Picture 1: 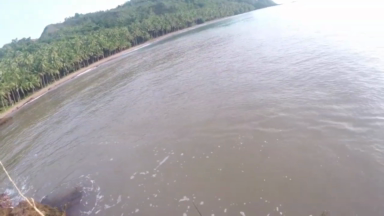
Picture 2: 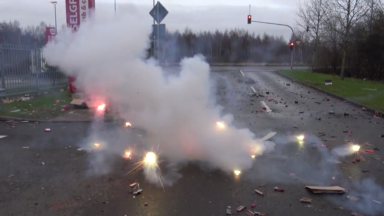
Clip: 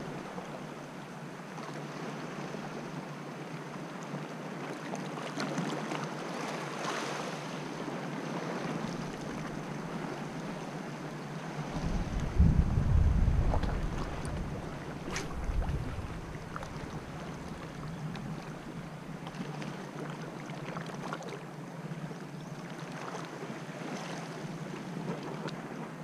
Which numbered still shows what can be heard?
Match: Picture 1